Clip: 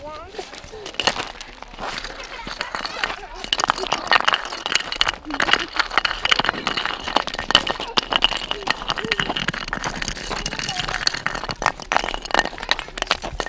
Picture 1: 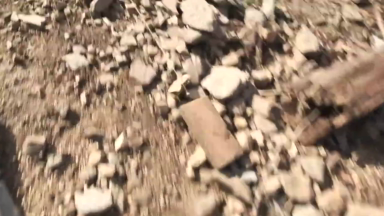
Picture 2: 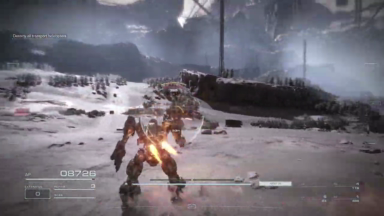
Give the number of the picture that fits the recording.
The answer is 1